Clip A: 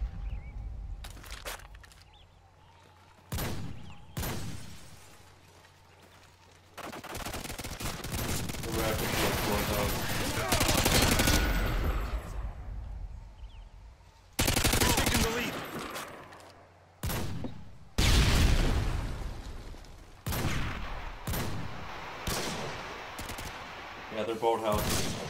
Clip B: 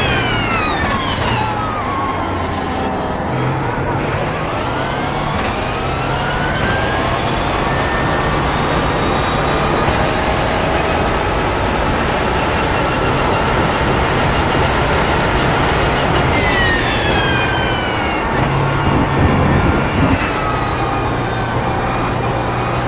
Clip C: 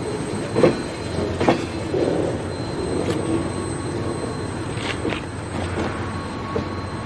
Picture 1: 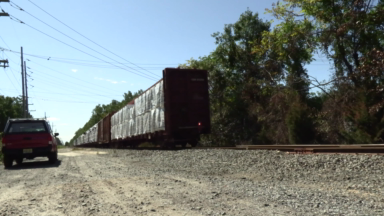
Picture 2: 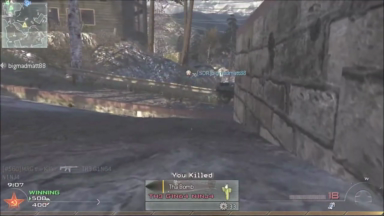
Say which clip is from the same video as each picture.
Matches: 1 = C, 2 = A